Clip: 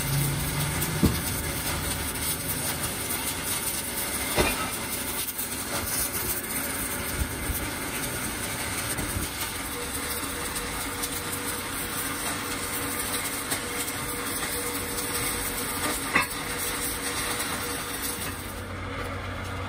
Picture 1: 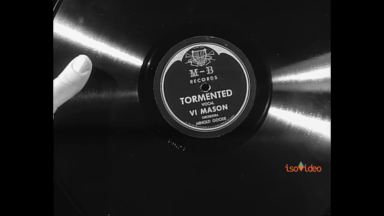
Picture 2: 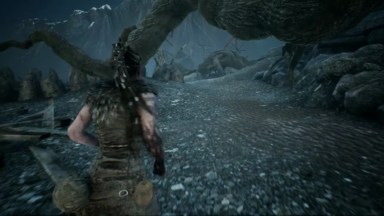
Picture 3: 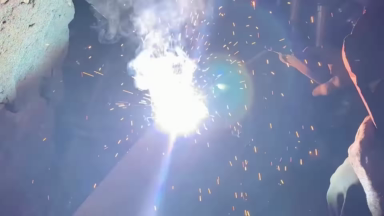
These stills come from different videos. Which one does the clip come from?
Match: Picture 3